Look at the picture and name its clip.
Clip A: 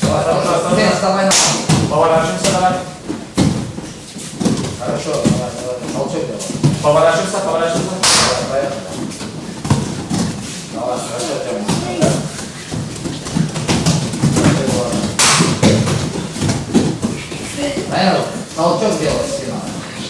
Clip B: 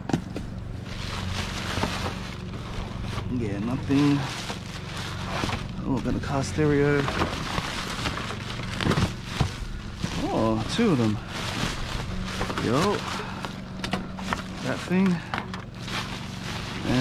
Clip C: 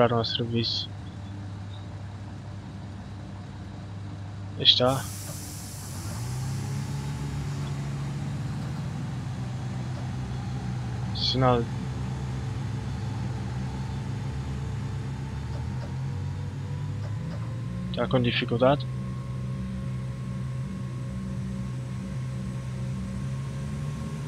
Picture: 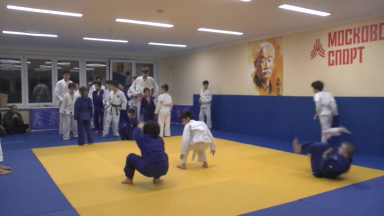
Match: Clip A